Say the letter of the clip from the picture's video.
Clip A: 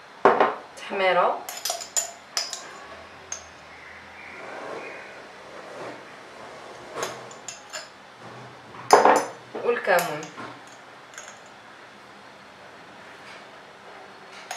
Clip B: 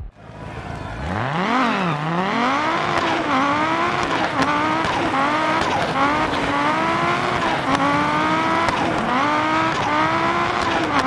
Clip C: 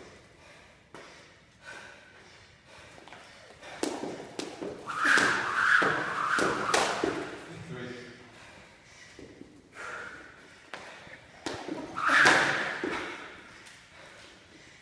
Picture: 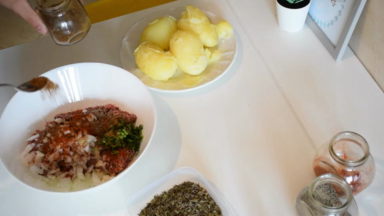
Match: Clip A